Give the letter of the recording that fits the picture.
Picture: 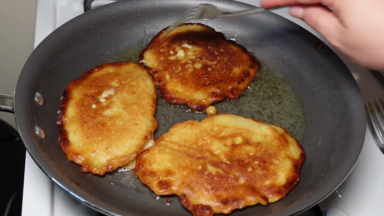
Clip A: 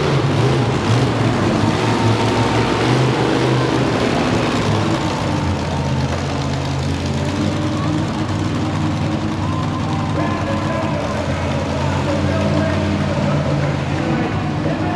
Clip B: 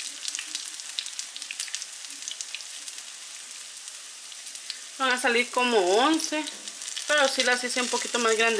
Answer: B